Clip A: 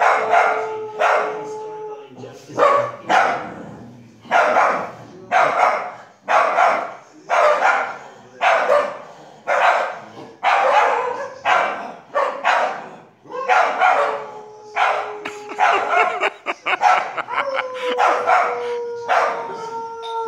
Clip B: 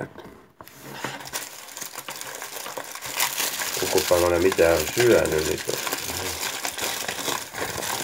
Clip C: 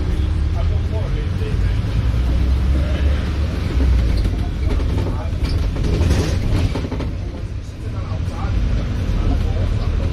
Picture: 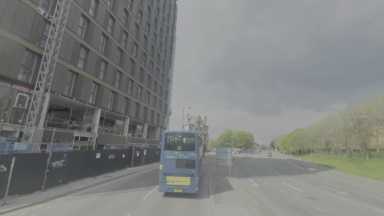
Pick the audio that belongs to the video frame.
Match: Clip C